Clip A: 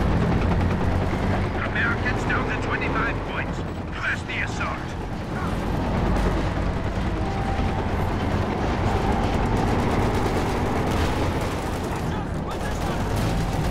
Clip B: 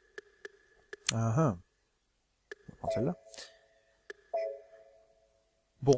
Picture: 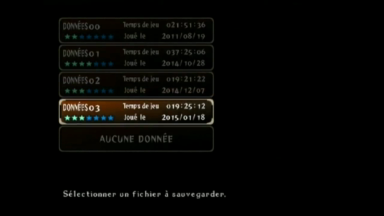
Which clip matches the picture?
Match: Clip B